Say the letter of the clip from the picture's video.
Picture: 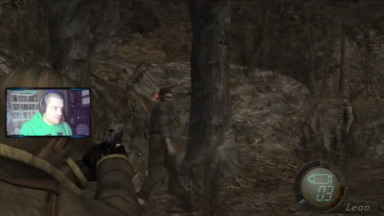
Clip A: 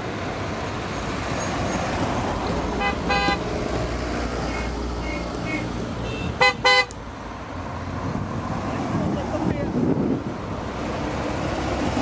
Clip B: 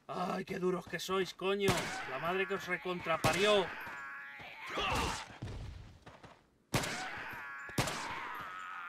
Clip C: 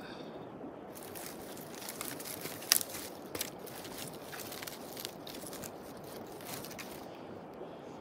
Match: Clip B